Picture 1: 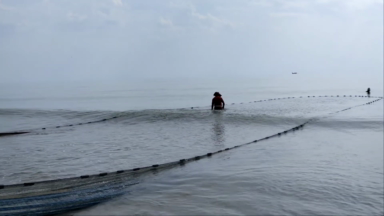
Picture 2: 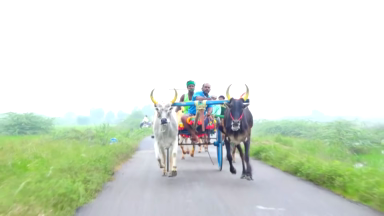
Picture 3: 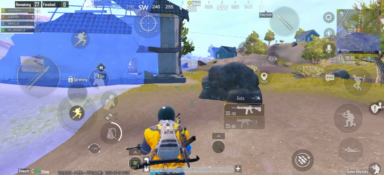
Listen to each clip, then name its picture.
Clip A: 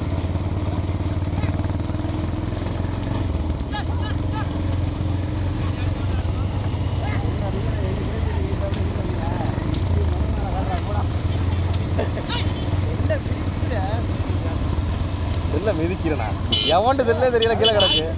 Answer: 2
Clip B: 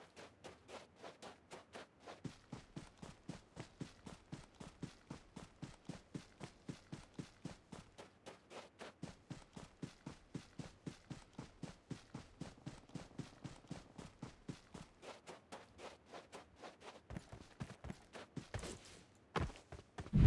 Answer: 3